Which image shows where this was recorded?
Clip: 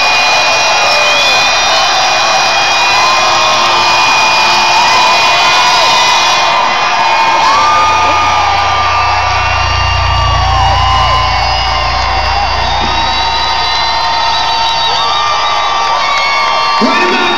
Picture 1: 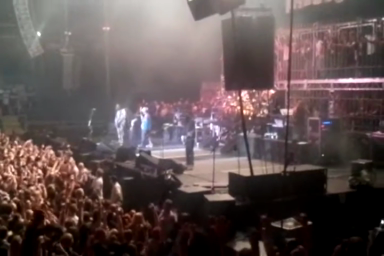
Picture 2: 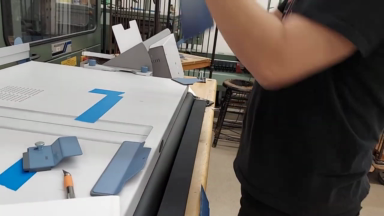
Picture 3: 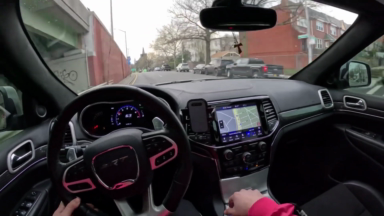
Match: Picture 1